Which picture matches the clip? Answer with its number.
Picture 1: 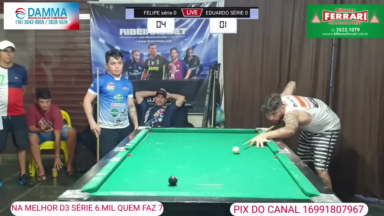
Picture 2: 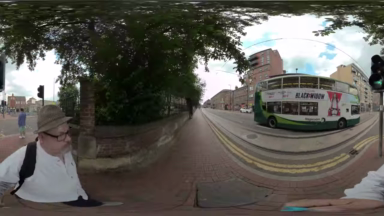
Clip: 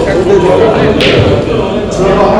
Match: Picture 1